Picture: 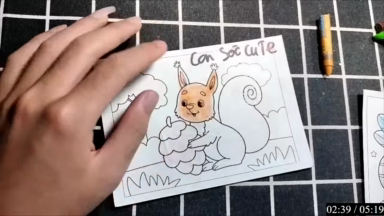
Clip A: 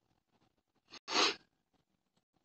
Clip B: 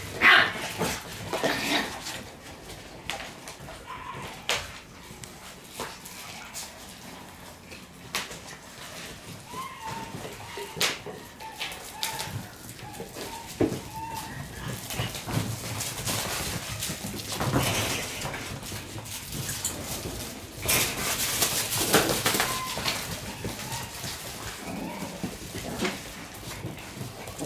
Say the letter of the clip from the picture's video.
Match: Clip A